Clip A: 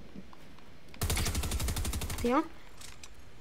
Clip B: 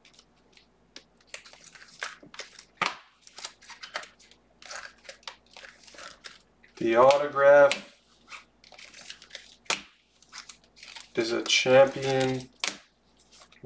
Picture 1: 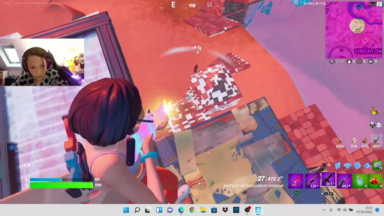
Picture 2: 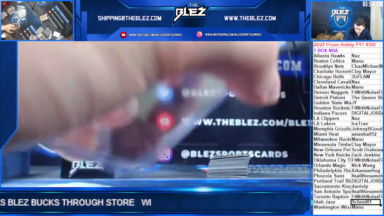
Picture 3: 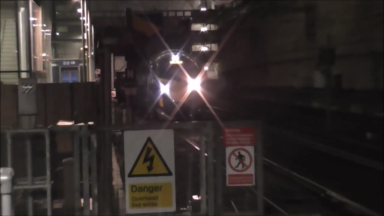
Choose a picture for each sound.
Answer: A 1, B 2